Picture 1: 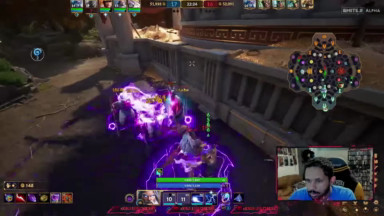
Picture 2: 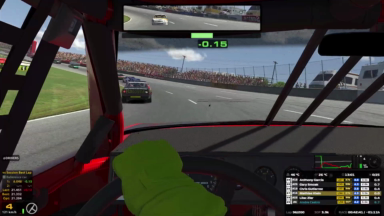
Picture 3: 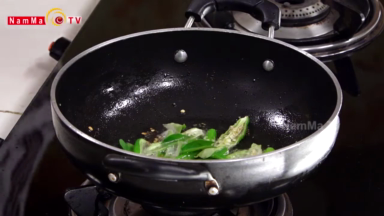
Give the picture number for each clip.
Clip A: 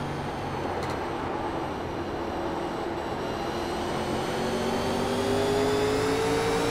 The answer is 2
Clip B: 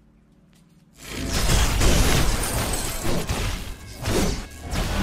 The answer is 1